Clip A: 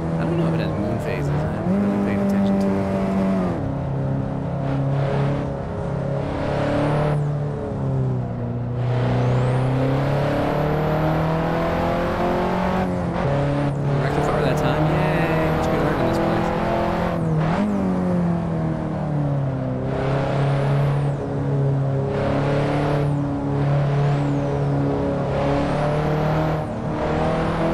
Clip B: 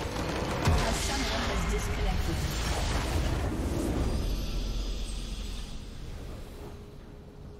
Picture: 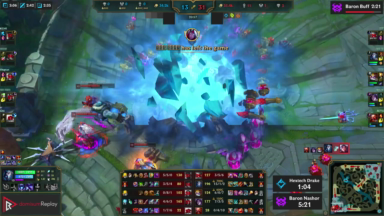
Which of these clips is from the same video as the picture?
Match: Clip B